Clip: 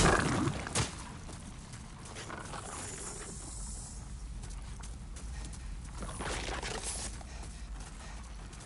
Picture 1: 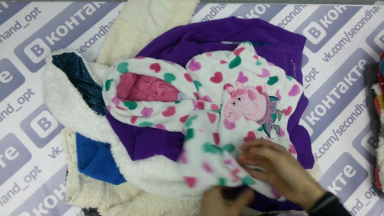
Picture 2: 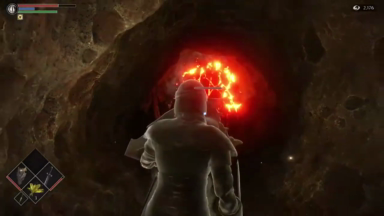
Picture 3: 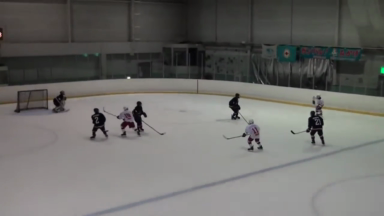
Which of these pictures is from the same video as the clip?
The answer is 2